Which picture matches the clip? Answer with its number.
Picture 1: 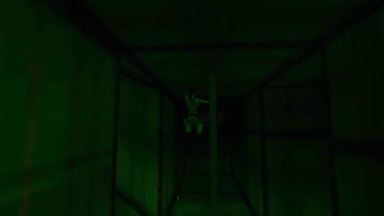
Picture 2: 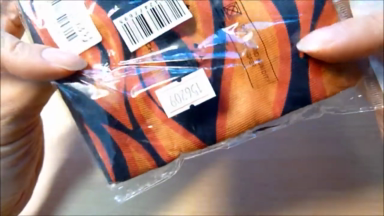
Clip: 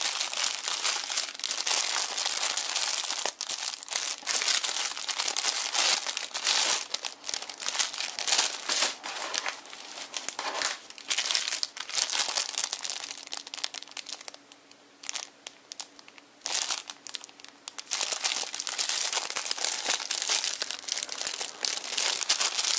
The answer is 2